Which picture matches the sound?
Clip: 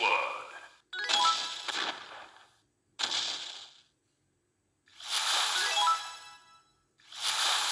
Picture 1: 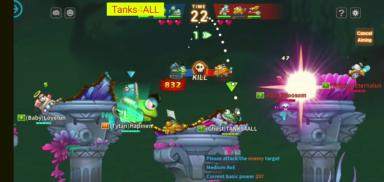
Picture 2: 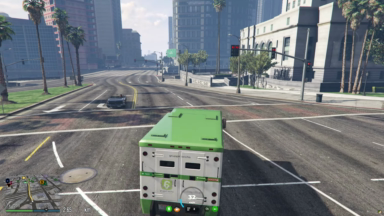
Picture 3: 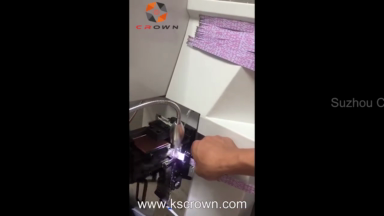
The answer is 1